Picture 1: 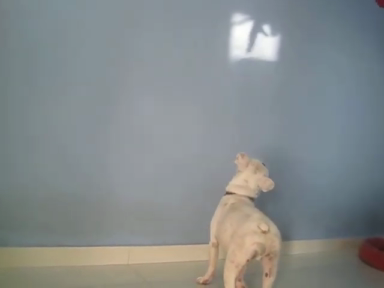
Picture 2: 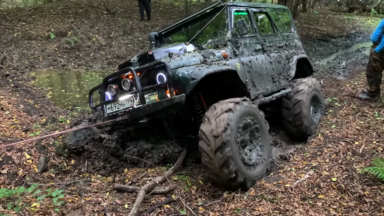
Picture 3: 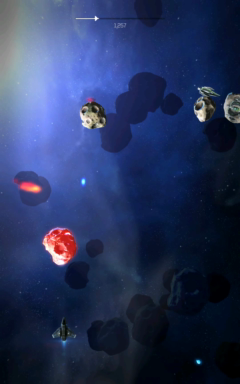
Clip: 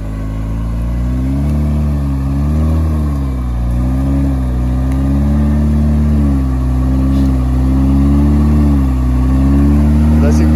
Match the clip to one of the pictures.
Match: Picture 2